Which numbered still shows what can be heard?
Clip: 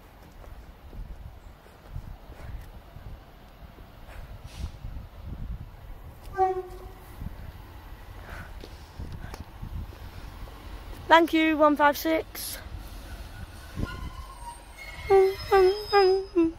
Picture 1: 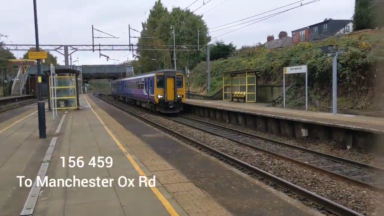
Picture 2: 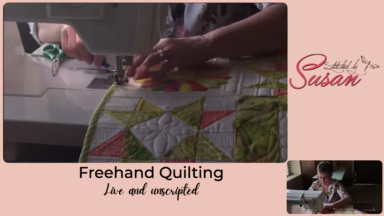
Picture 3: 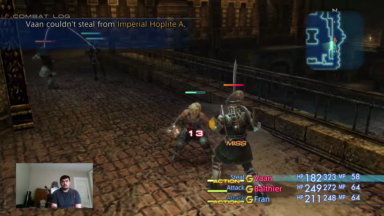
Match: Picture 1